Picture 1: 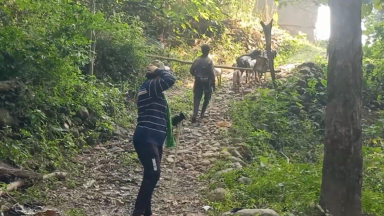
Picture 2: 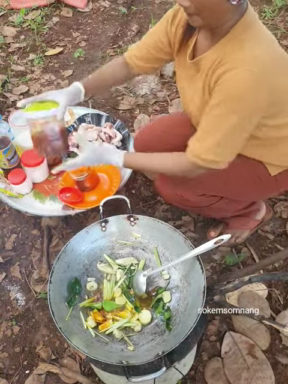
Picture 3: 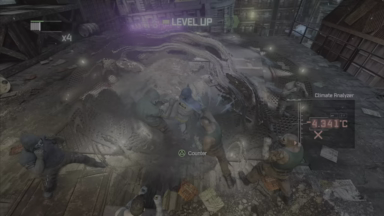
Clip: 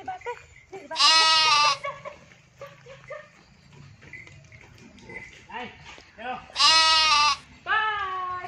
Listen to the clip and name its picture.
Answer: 1